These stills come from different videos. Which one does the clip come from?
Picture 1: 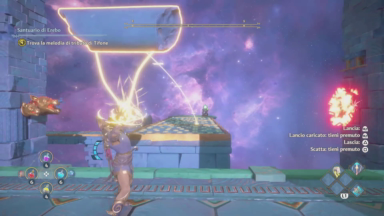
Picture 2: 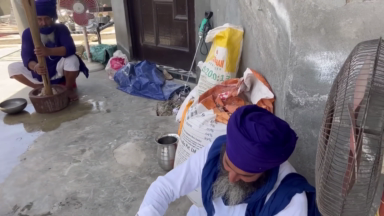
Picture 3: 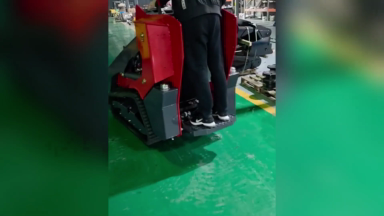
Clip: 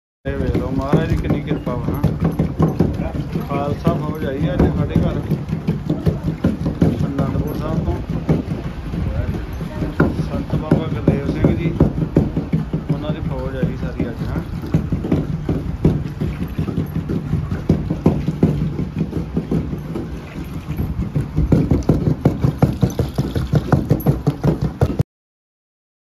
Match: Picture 2